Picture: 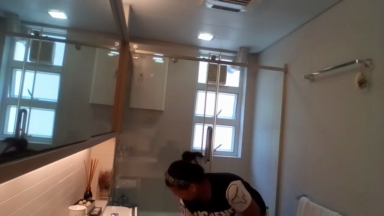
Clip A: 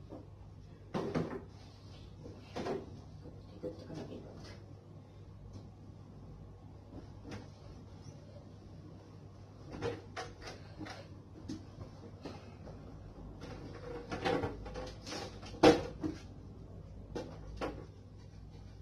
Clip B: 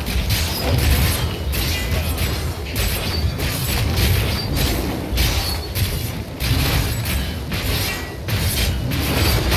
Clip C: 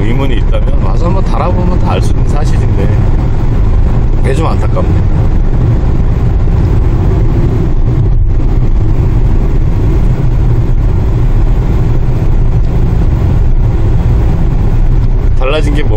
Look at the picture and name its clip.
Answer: A